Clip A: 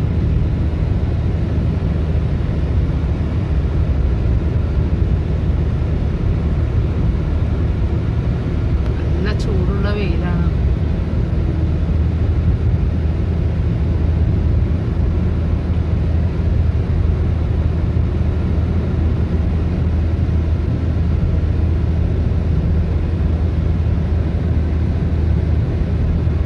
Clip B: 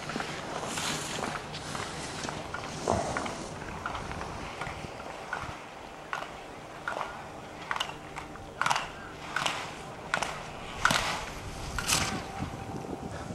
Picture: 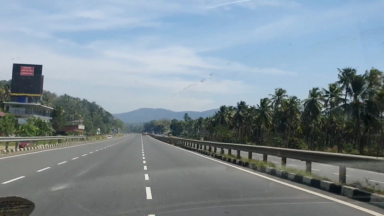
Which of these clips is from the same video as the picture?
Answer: A